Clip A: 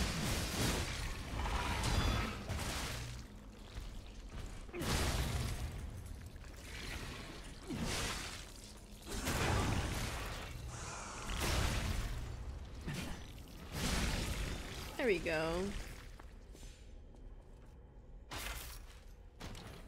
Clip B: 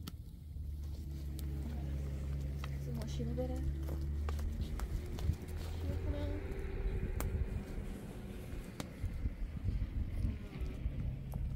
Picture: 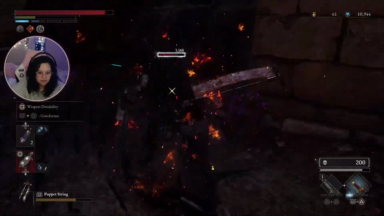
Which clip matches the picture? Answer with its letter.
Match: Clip A